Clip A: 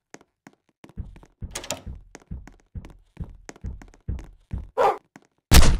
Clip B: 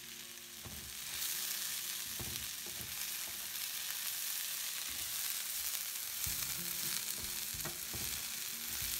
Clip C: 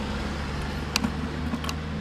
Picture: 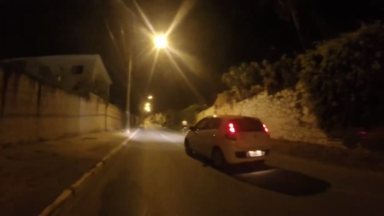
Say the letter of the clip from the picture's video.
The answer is C